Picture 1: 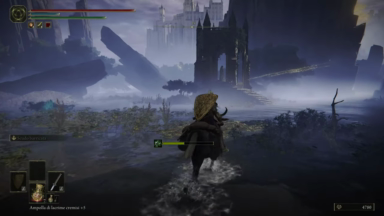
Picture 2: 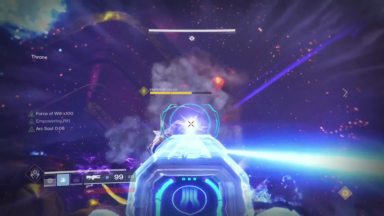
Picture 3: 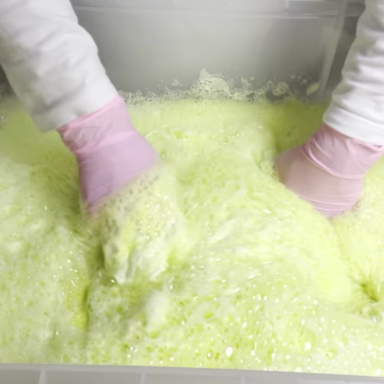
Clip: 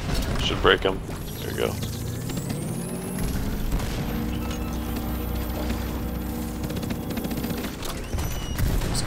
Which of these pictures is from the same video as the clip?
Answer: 2